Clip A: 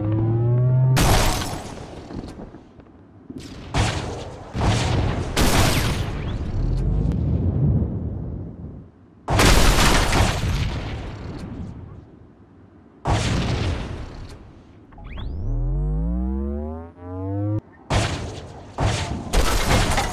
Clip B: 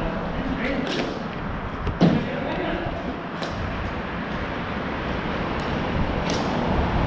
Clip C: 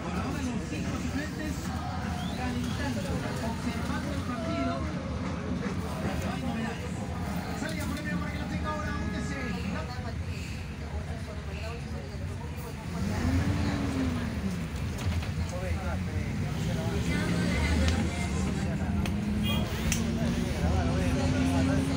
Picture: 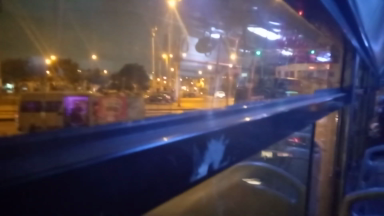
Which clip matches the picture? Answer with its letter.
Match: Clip C